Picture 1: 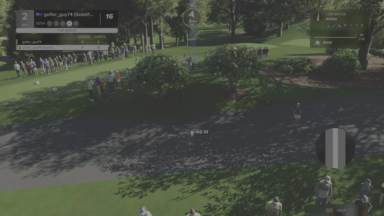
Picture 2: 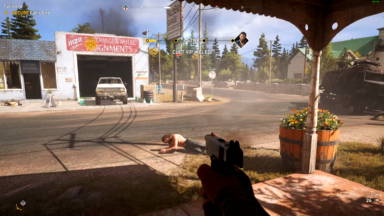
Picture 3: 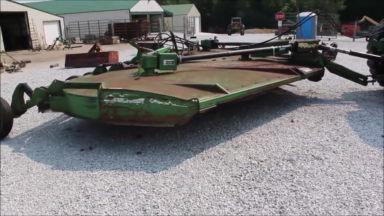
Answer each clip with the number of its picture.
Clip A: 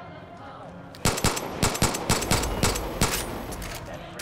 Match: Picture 2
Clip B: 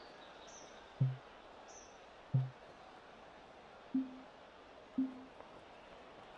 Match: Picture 1